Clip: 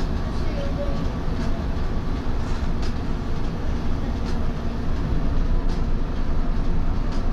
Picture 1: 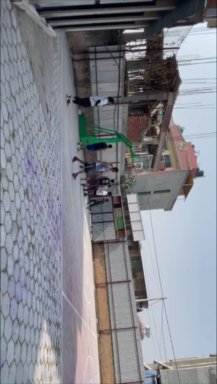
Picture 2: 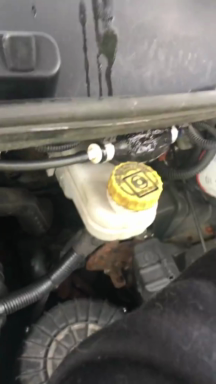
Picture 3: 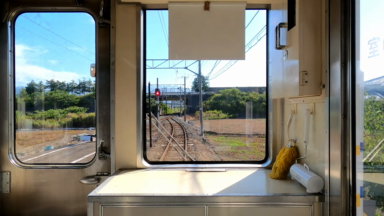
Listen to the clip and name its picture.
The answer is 3